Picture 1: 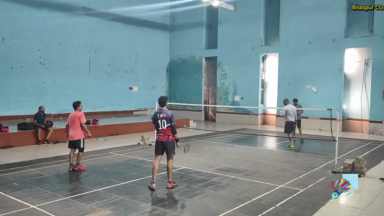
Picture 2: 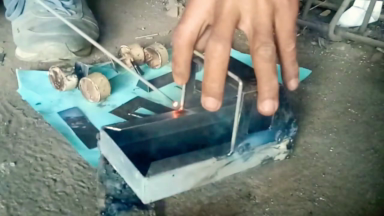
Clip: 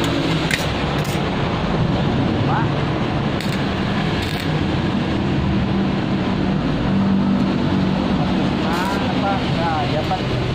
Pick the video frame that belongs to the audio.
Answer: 2